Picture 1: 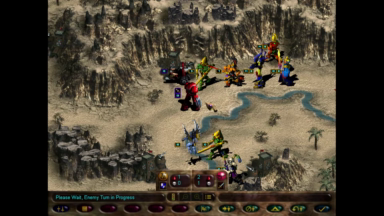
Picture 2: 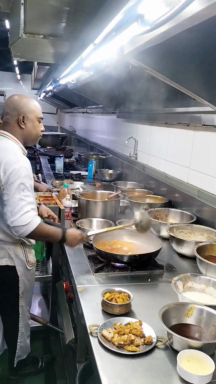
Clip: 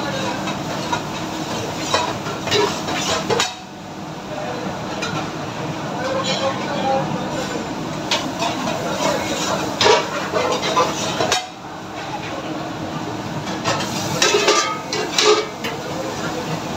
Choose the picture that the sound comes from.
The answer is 2